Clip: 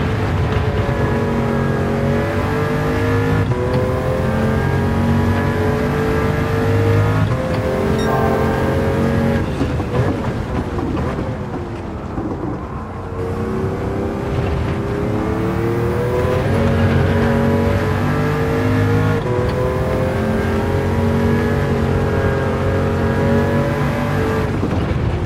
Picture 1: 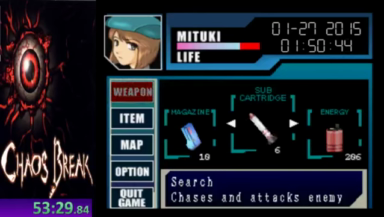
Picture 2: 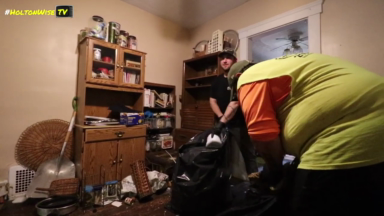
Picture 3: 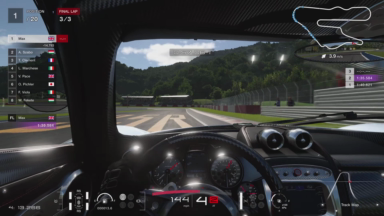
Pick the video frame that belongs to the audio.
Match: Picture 3